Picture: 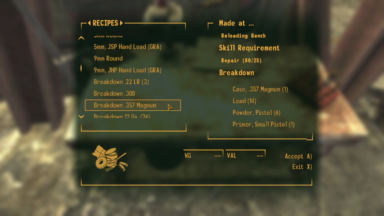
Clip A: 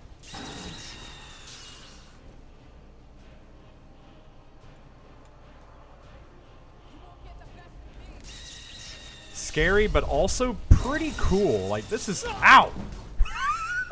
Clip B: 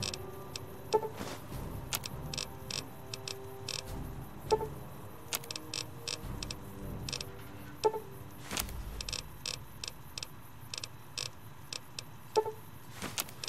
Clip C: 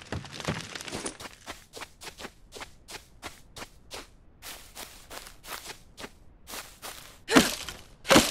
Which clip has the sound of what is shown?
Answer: B